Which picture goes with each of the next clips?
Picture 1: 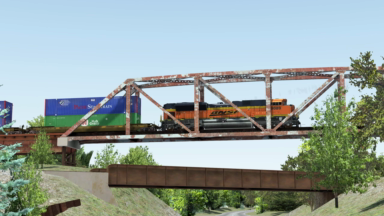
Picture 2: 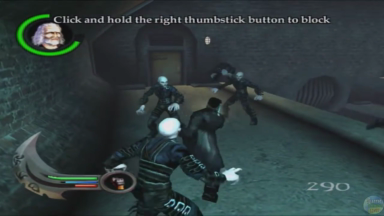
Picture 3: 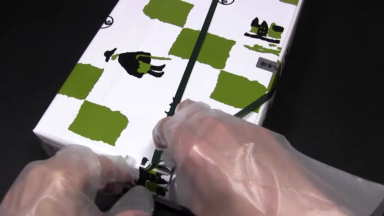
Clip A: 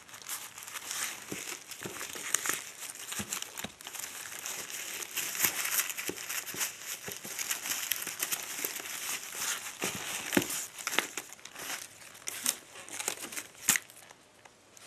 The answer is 3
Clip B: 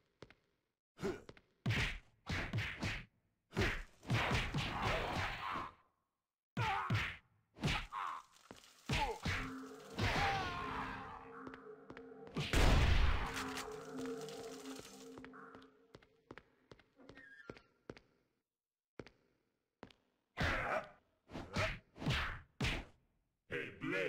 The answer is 2